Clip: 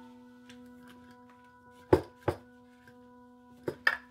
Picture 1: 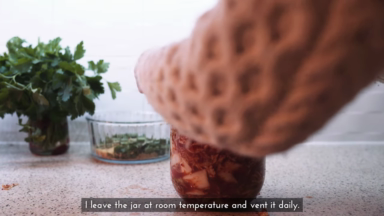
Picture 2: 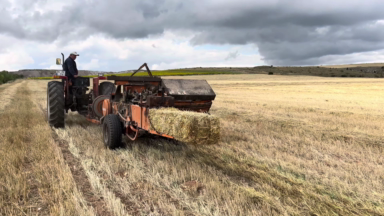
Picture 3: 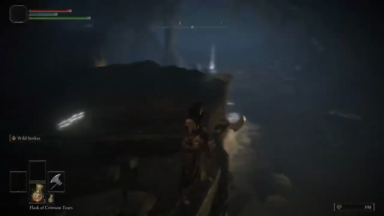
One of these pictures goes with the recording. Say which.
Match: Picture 1